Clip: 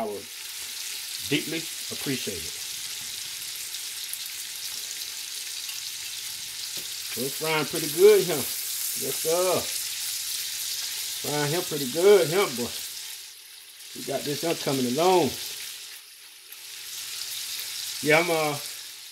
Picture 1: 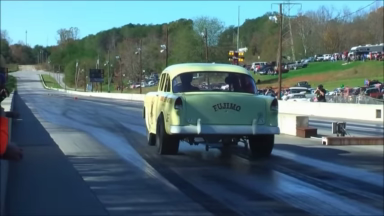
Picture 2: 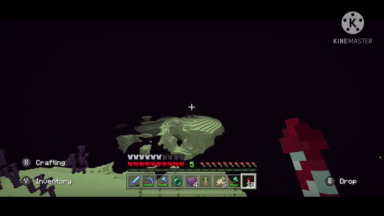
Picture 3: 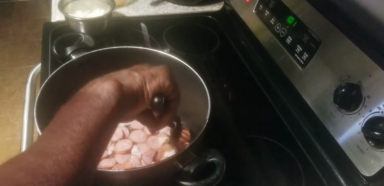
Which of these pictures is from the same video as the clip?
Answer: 3